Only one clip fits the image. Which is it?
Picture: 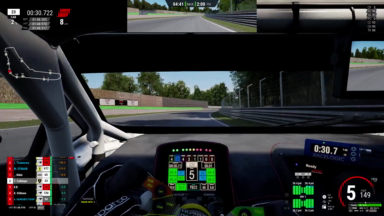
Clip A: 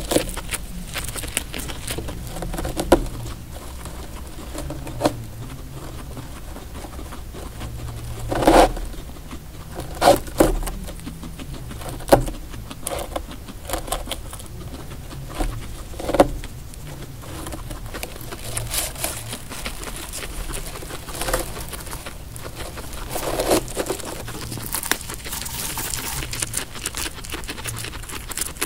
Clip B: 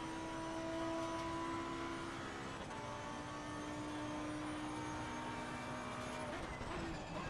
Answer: B